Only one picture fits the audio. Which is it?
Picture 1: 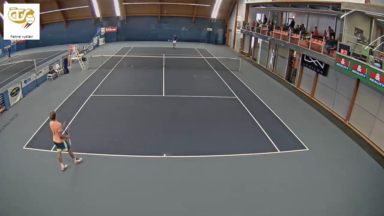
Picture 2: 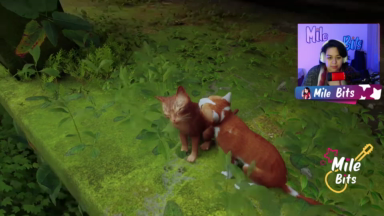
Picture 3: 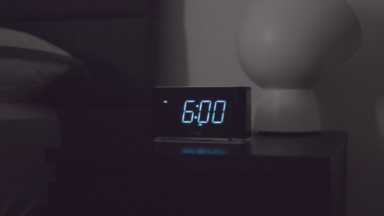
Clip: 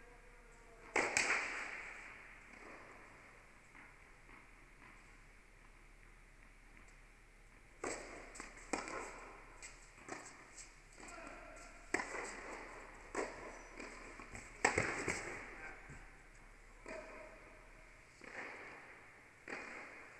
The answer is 1